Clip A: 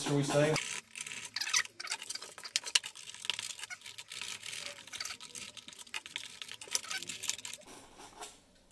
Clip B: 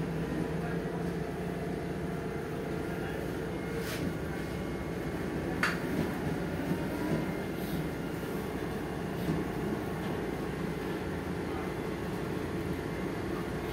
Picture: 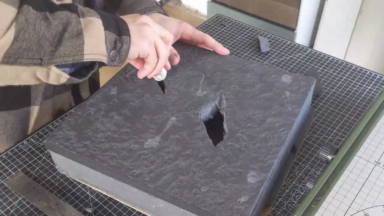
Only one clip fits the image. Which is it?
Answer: A